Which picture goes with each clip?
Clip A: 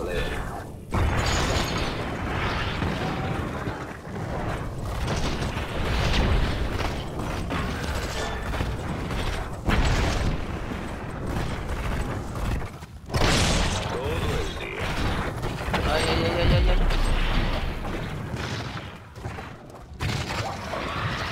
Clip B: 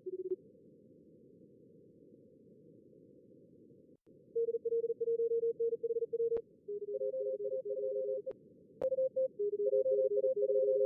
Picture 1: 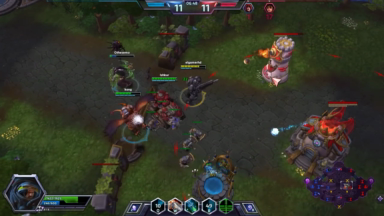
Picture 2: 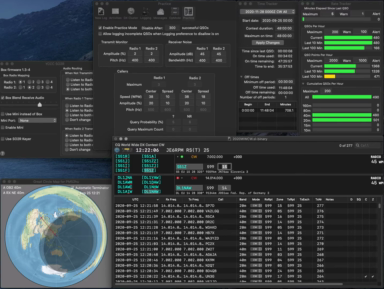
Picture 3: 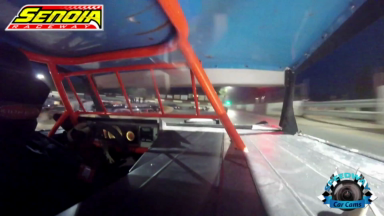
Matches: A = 1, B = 2